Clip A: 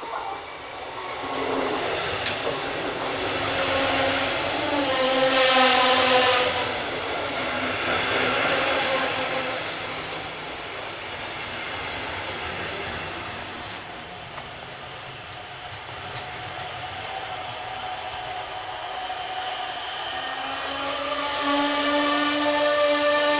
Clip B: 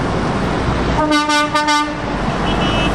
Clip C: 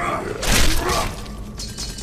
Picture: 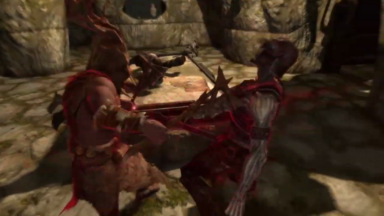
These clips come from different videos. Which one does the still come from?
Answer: C